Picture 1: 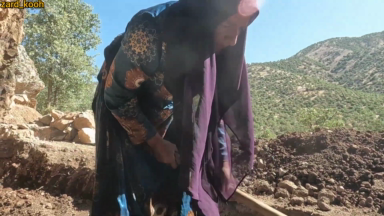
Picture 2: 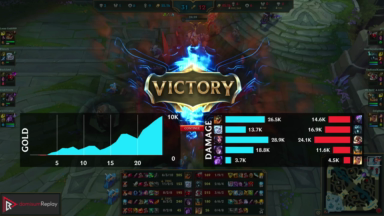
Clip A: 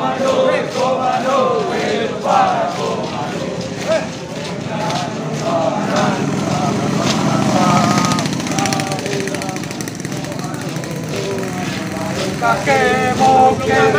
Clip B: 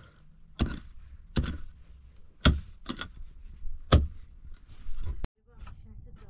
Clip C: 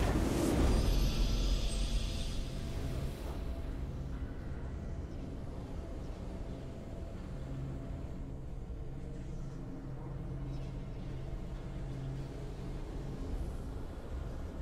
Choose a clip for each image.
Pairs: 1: B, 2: C